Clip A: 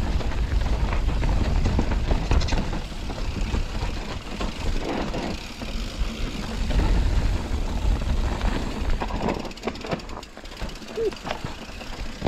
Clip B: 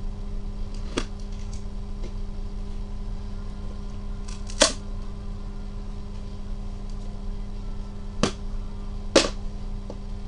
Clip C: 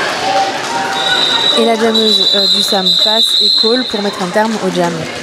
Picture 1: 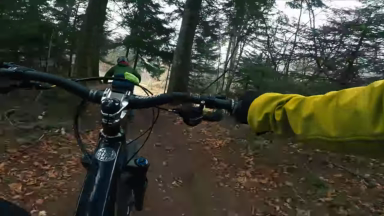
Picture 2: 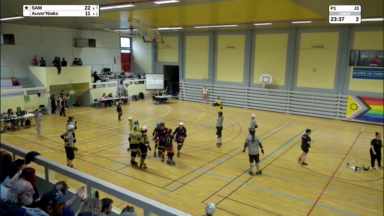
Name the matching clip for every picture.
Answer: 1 A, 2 C